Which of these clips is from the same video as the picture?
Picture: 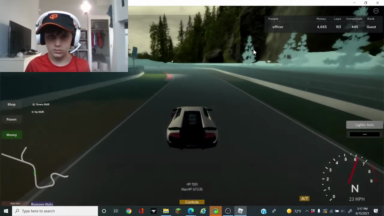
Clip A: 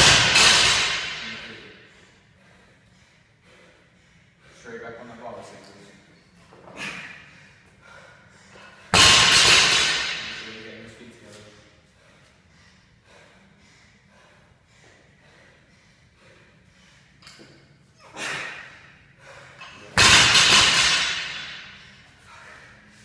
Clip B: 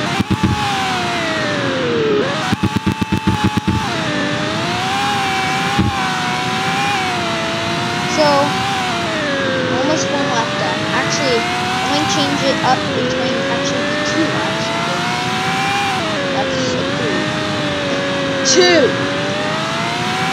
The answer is B